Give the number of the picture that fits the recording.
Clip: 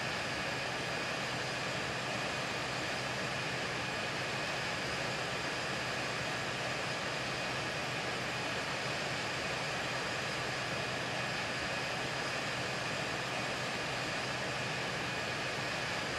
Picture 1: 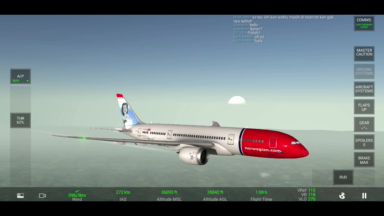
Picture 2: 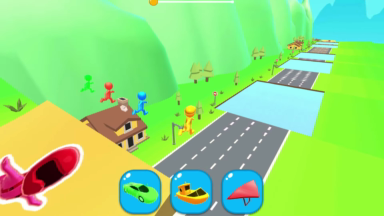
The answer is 1